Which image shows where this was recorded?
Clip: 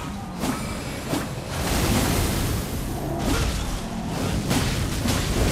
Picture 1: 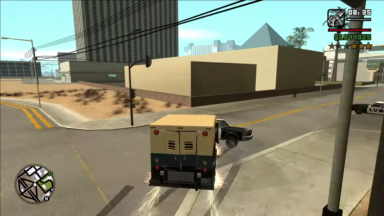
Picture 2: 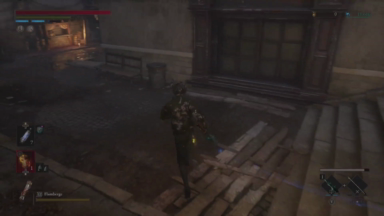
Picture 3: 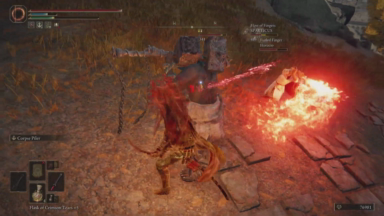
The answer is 3